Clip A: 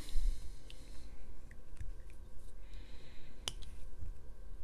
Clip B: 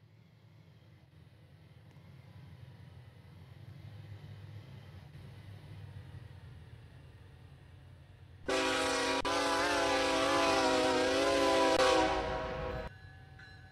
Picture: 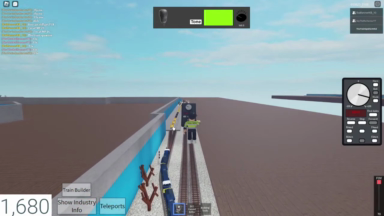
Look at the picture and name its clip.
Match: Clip B